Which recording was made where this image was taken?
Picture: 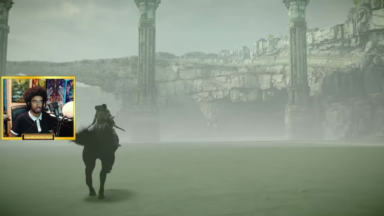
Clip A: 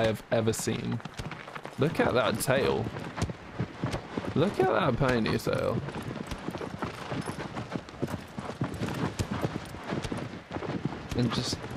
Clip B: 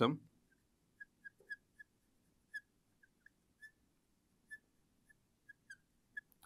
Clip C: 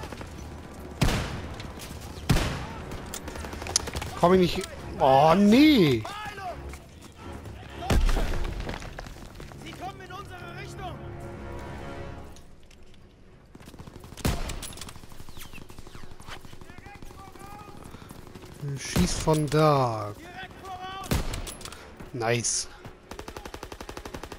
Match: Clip A